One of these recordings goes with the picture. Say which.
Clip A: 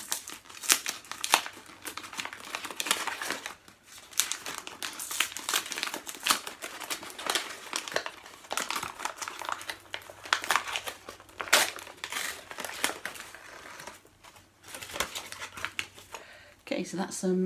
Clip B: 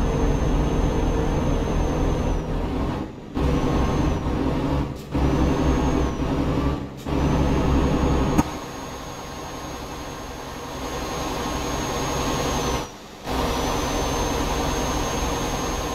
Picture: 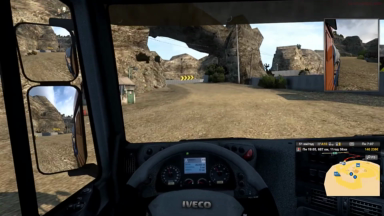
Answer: B